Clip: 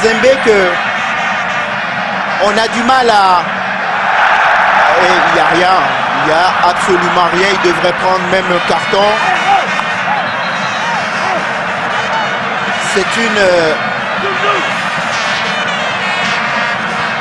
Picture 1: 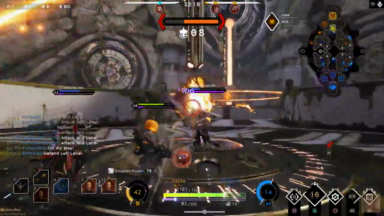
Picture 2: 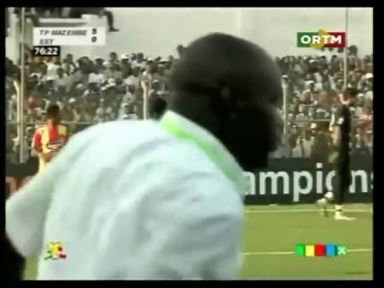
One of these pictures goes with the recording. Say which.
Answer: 2